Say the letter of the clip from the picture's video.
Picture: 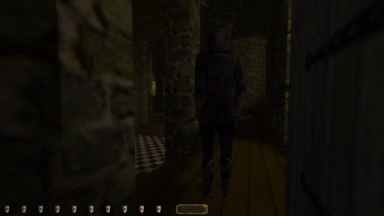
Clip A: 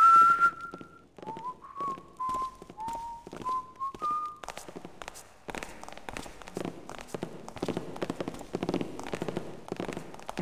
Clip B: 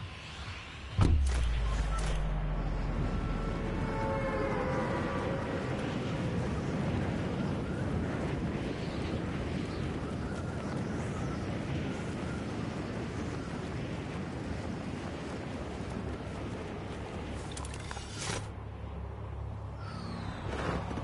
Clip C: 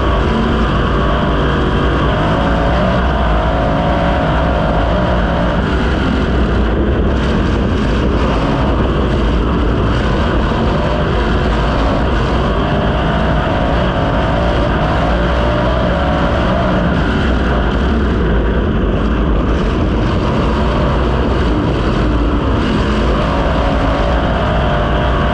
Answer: A